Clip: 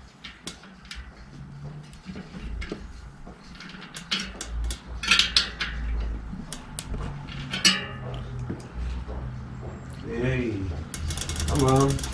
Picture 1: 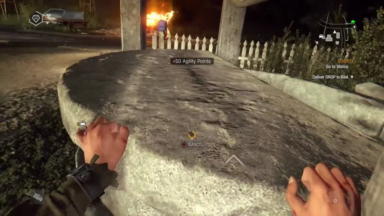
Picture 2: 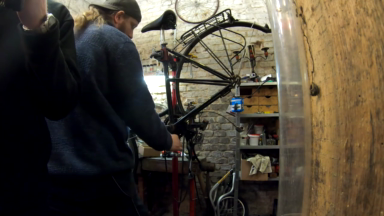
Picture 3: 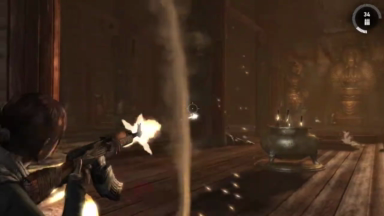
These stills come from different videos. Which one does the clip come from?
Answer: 2